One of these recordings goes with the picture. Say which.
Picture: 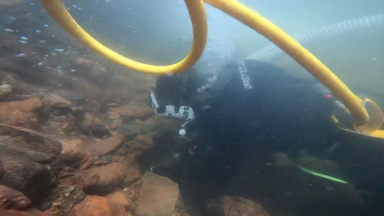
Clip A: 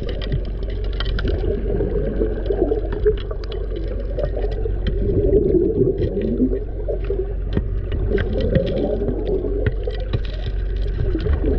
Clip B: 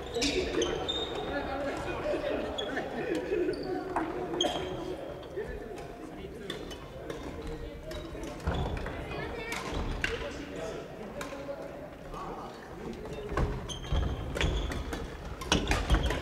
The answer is A